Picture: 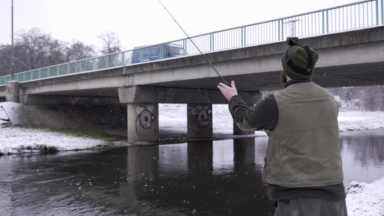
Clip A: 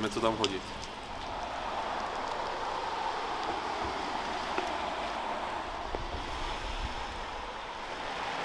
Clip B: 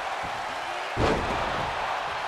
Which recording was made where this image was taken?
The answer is A